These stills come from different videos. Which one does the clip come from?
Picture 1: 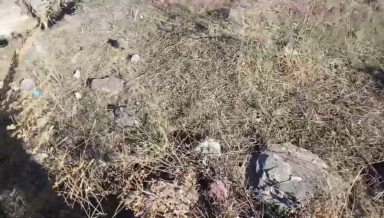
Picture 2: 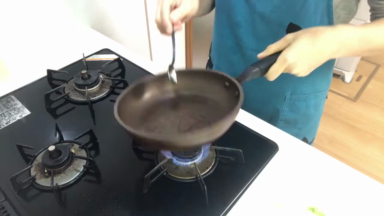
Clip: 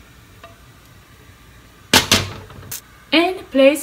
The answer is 2